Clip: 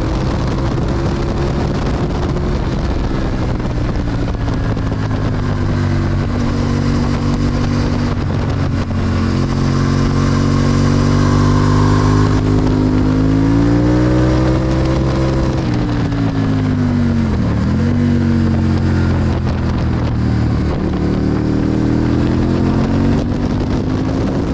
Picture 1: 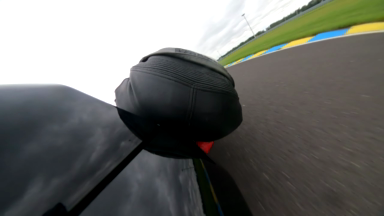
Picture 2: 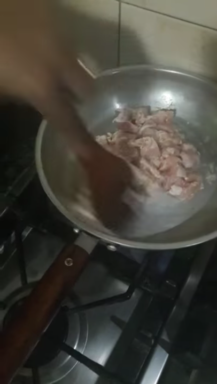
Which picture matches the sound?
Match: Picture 1